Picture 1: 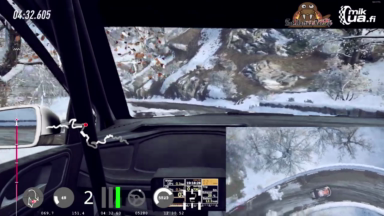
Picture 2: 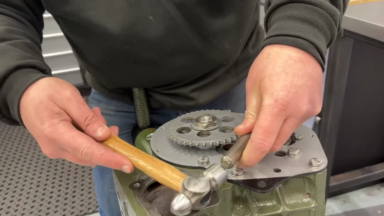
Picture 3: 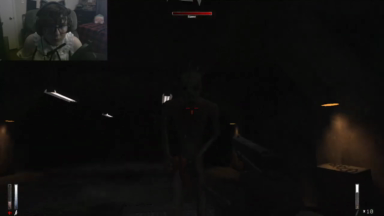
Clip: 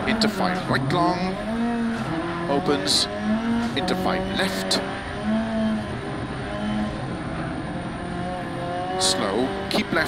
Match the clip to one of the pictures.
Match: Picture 1